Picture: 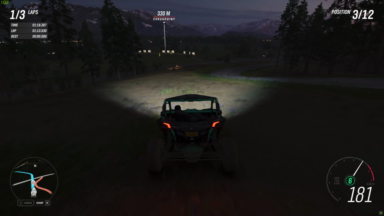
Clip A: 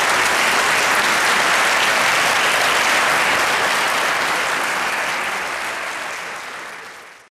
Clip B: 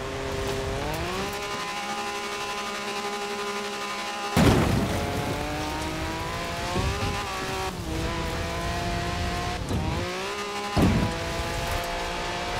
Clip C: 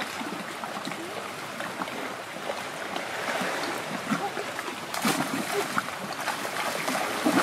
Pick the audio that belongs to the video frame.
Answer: B